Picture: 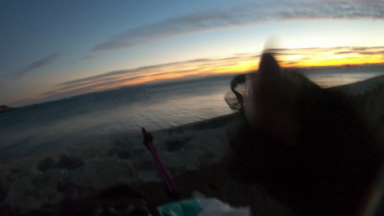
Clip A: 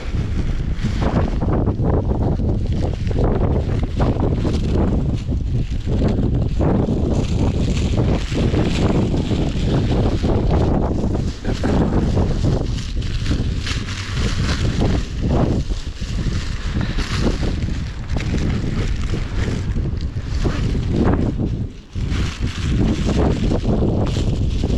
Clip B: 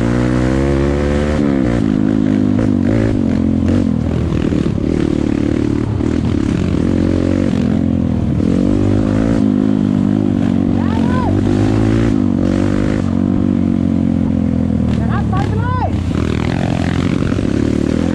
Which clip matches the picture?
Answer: A